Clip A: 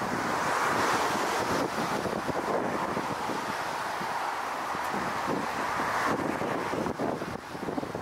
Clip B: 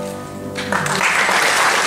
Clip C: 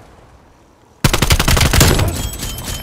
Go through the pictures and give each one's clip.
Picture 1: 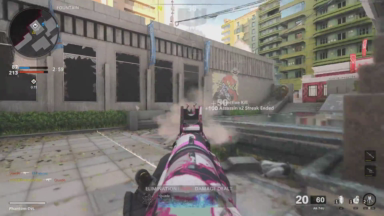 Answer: C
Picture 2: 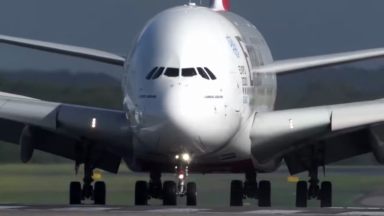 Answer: A